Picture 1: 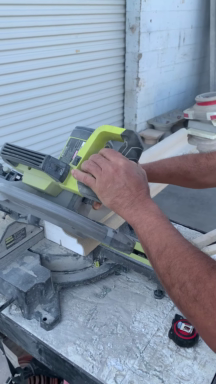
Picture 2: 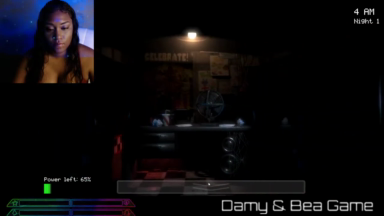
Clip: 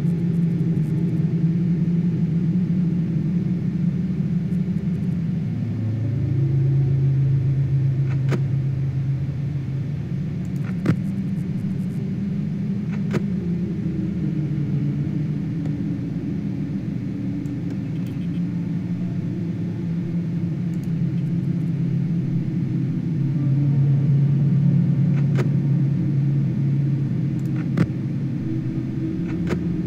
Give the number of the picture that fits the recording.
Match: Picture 2